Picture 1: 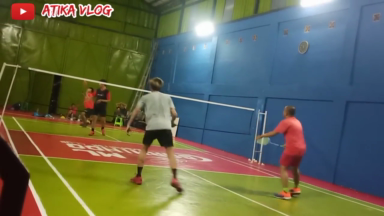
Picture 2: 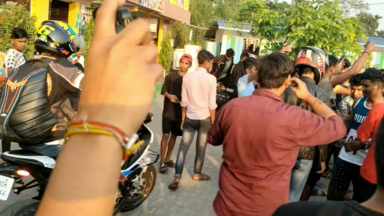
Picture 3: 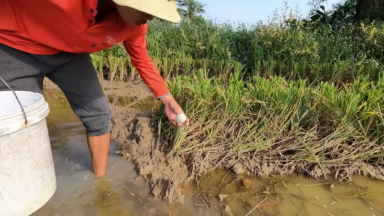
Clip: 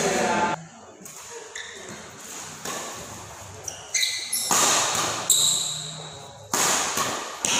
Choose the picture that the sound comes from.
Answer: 1